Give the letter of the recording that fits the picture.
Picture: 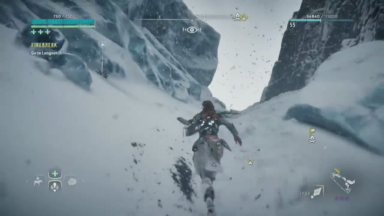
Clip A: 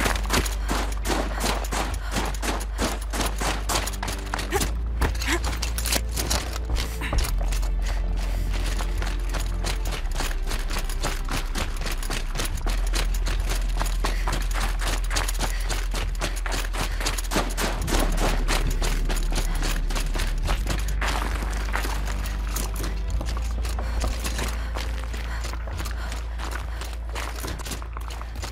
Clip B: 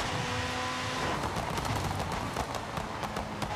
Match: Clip A